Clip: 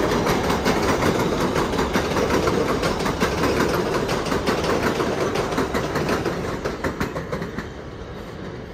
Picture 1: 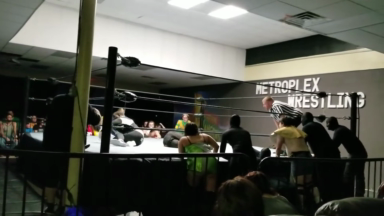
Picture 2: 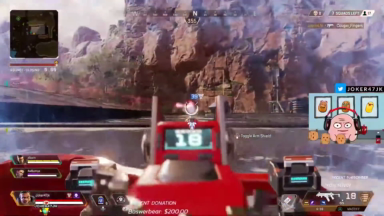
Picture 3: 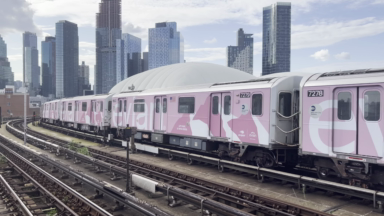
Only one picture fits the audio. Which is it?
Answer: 3